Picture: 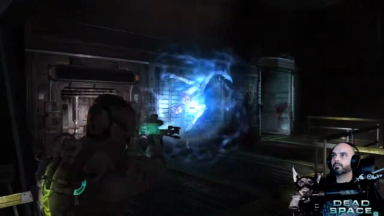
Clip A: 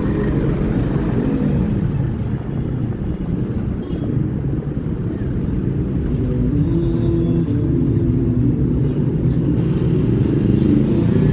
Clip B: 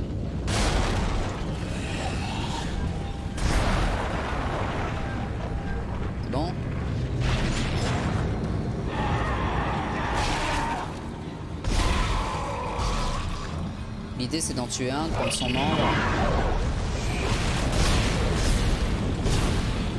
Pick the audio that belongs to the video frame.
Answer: B